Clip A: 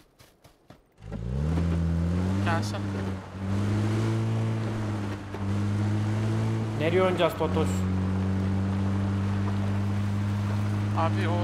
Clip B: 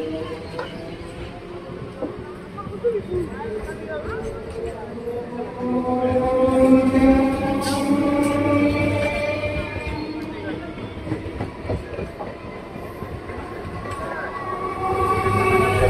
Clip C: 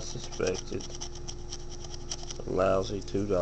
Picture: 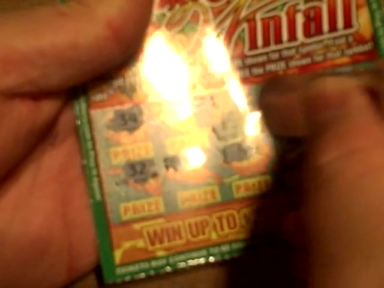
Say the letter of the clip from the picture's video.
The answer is C